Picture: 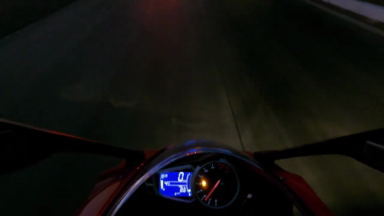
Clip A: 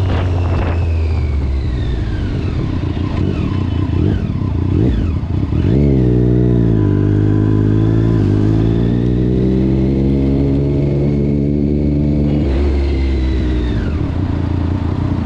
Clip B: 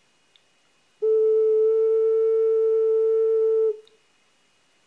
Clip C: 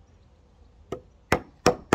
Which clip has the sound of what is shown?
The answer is A